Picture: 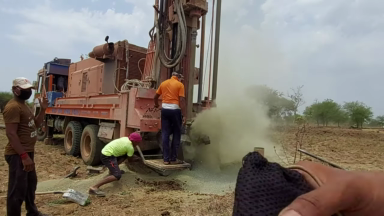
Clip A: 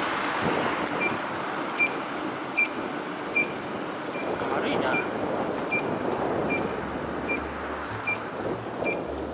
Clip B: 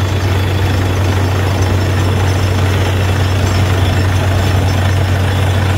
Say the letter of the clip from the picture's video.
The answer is B